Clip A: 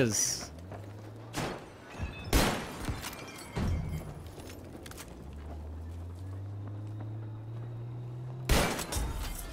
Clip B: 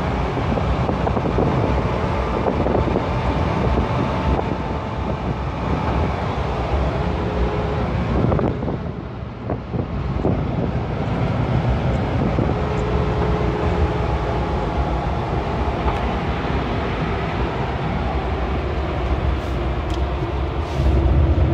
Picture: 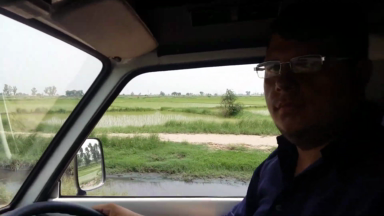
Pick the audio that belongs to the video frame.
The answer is B